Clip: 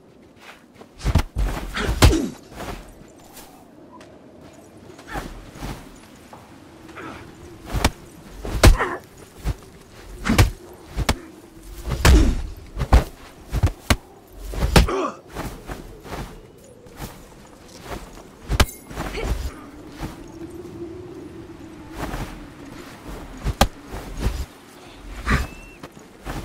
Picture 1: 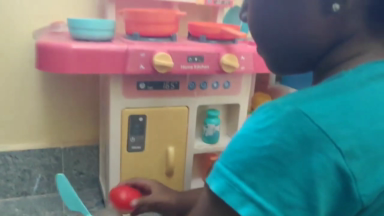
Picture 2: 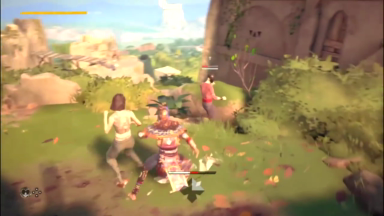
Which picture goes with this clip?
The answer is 2